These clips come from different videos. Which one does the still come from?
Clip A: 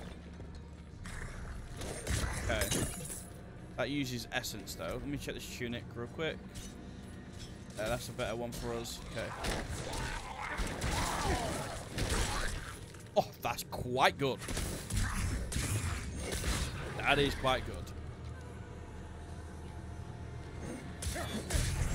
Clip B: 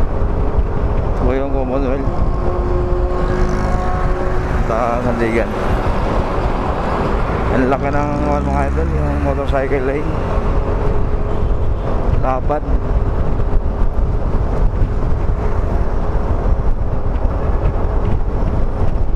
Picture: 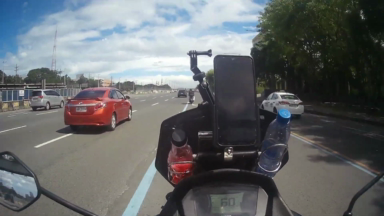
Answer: B